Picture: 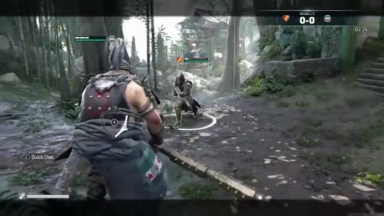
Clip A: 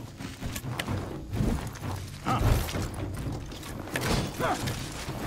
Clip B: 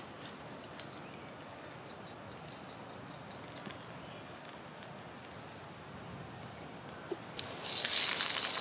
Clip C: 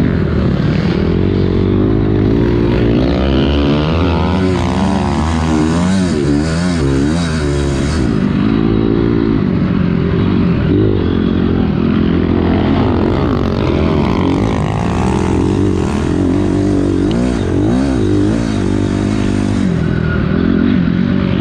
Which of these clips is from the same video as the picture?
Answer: A